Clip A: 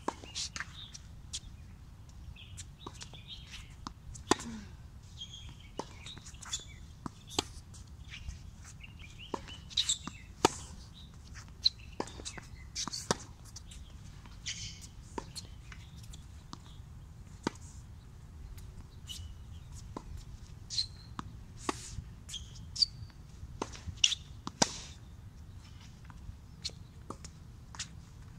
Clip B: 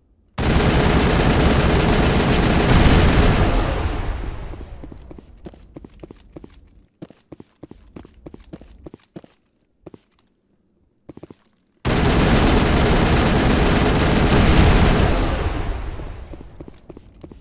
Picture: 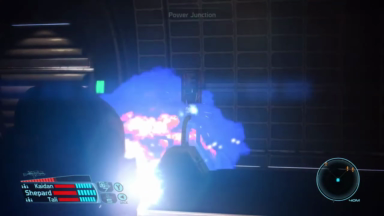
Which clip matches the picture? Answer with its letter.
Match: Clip B